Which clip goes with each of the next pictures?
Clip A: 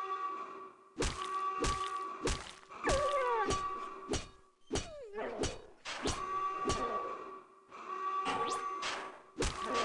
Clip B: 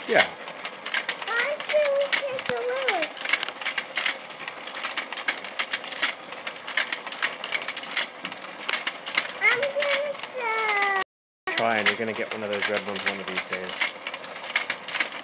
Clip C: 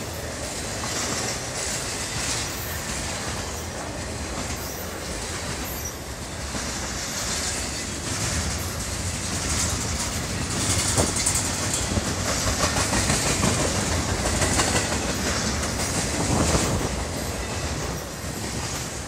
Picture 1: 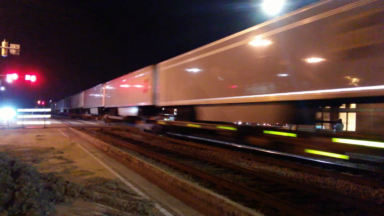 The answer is C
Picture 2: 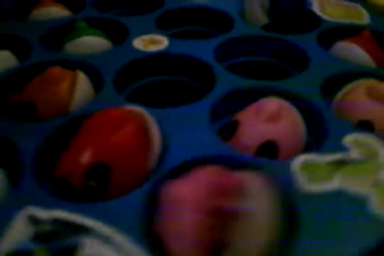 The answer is B